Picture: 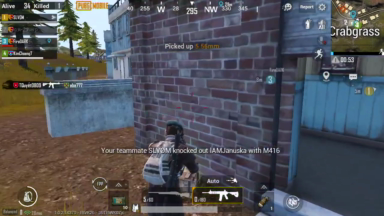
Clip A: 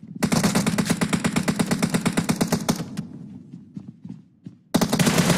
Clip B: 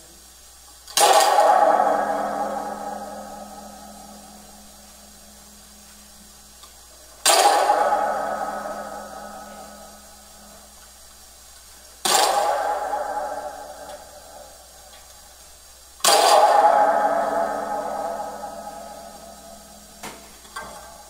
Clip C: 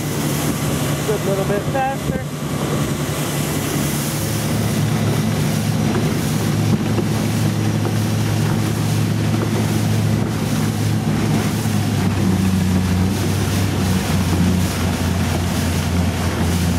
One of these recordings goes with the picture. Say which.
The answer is A